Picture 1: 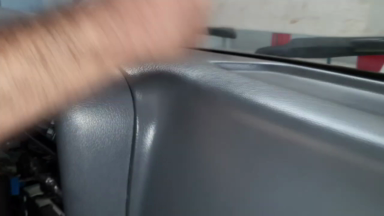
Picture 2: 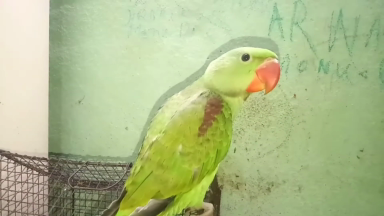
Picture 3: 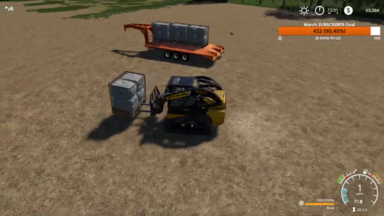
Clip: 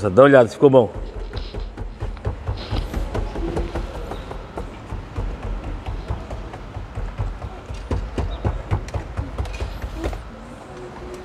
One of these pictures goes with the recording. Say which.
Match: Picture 1